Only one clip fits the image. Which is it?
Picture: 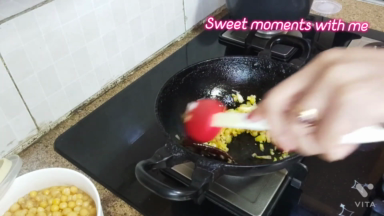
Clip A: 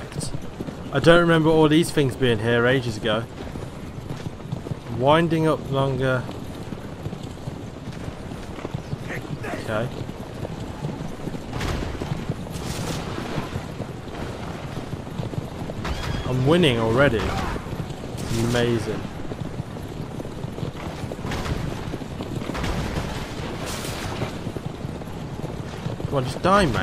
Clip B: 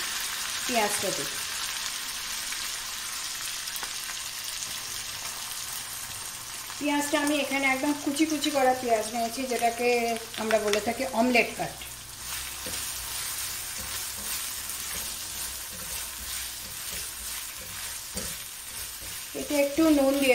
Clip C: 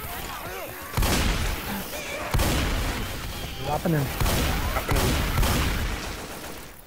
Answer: B